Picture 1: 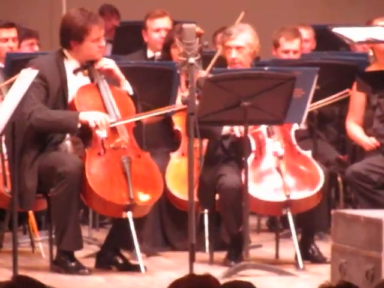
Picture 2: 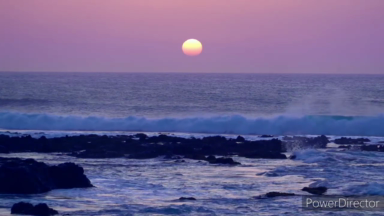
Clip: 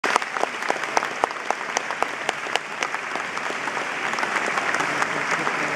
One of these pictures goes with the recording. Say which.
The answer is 1